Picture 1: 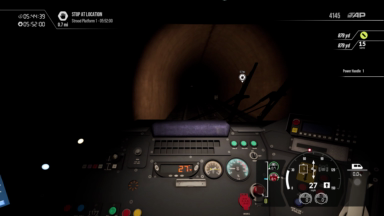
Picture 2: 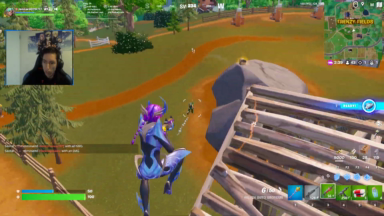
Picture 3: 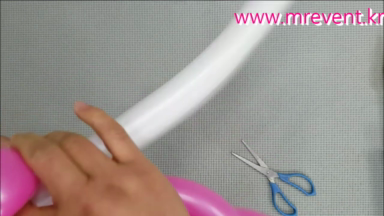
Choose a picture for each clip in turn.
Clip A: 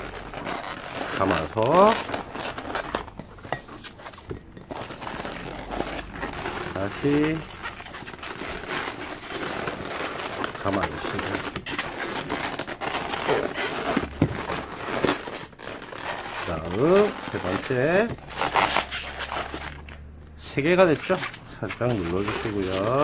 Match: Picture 3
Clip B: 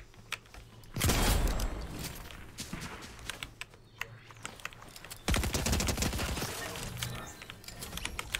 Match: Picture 2